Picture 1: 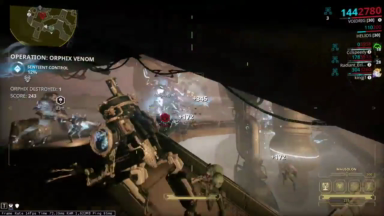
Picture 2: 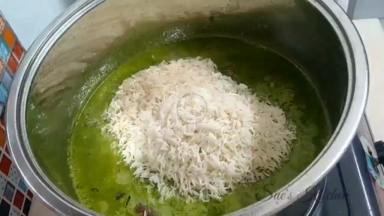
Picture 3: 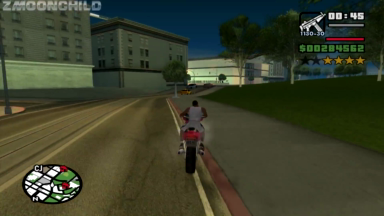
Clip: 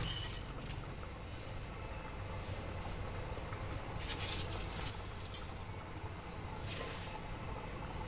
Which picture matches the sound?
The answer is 2